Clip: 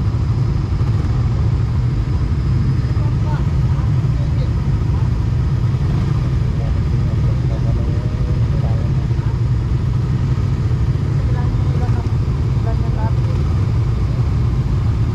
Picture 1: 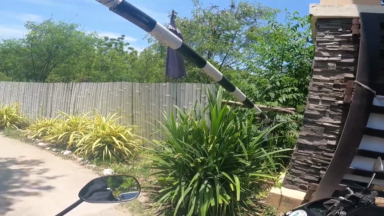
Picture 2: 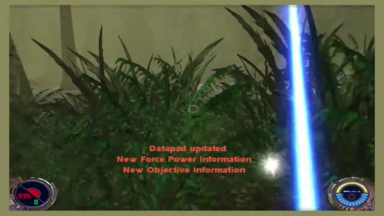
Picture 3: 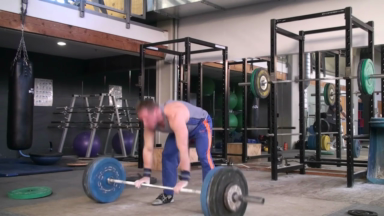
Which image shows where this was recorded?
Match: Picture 1